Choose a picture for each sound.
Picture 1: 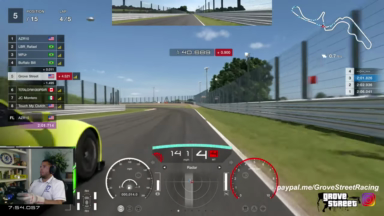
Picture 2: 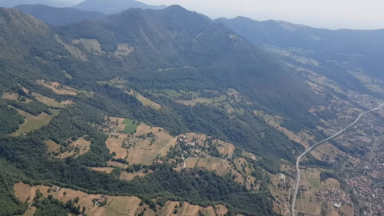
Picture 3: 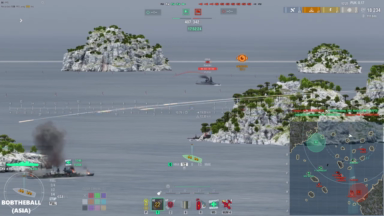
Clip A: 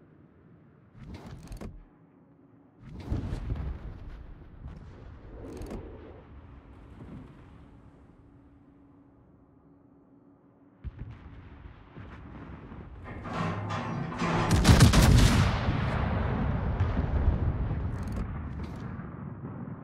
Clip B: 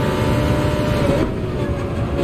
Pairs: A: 3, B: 1